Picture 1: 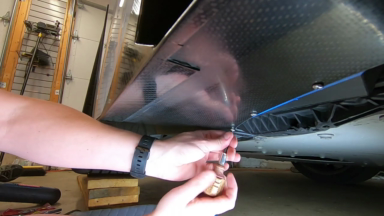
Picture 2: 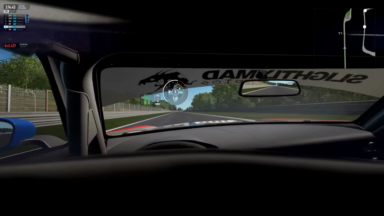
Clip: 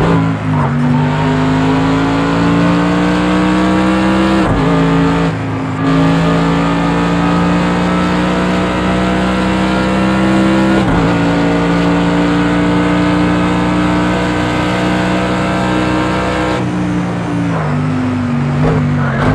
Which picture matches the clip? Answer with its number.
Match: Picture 2